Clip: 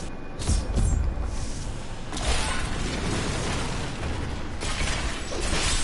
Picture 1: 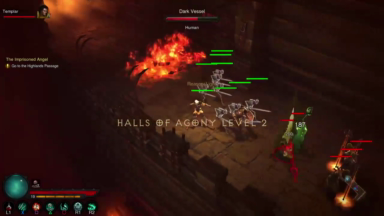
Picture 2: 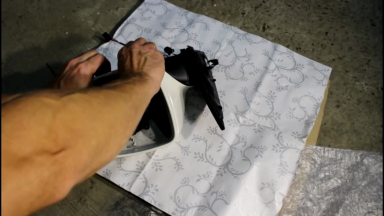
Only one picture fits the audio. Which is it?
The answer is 1